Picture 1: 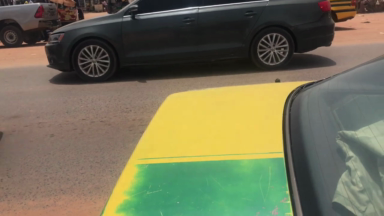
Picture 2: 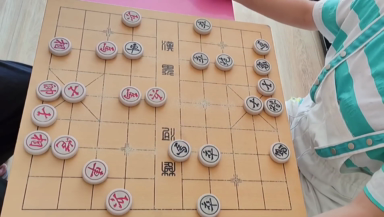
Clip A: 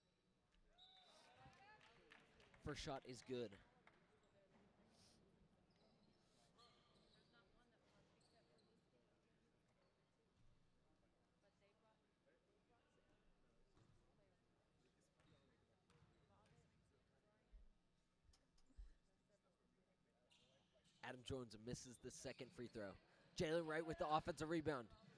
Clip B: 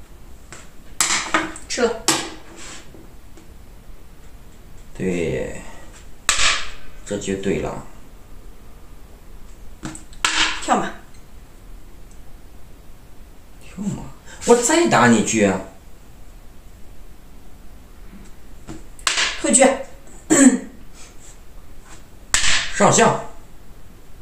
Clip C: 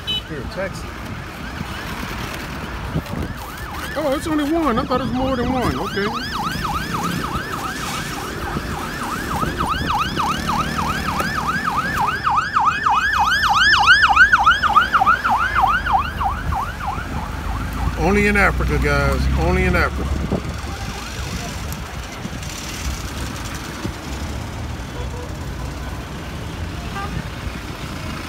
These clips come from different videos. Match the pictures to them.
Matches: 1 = C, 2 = B